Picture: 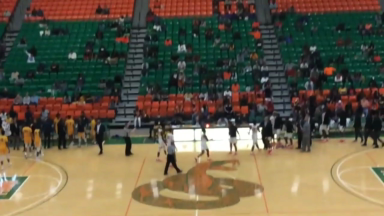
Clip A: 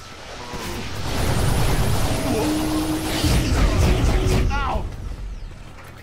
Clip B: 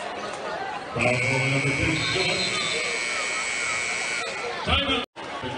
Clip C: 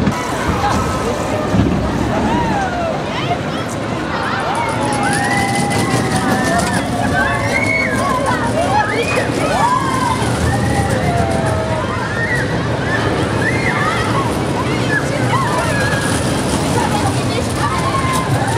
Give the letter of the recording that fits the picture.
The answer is B